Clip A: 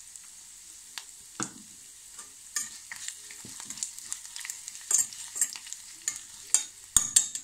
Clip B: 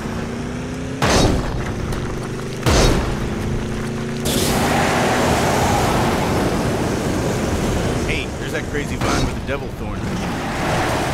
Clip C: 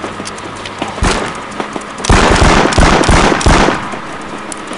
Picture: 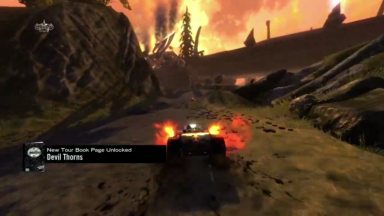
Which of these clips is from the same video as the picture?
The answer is B